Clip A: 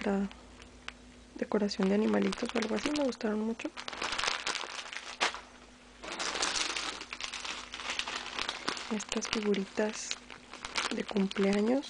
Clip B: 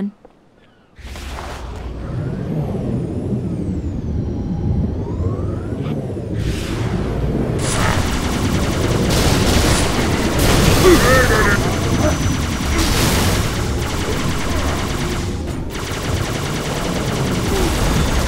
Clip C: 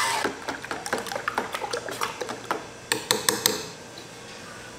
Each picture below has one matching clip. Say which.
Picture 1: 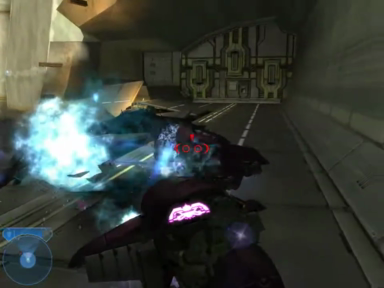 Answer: B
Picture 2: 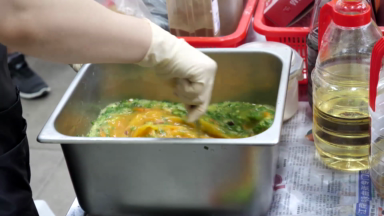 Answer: C